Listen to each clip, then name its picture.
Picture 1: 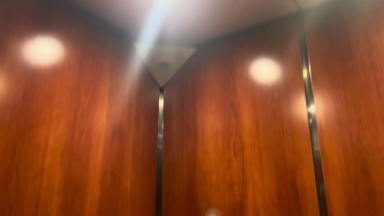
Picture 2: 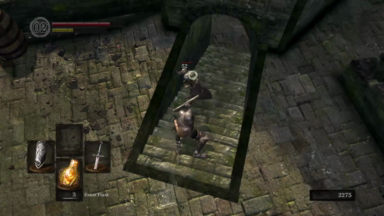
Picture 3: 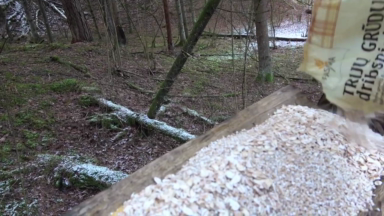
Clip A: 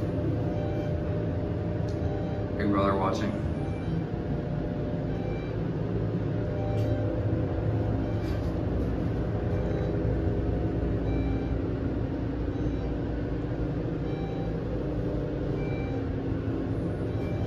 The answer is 1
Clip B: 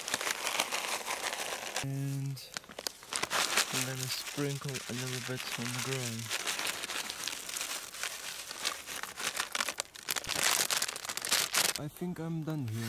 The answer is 3